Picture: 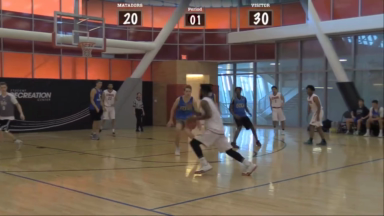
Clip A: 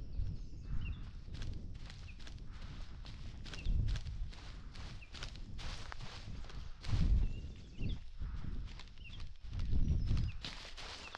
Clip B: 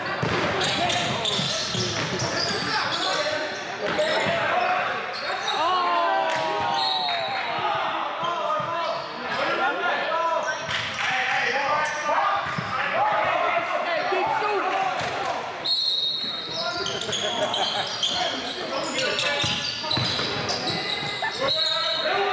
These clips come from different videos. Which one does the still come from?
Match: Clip B